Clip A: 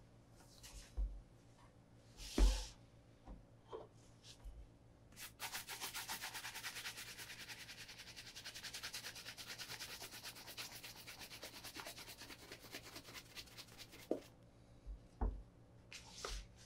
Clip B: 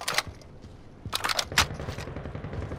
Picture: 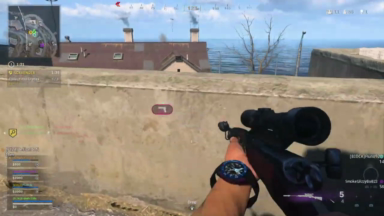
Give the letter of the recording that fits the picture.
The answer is B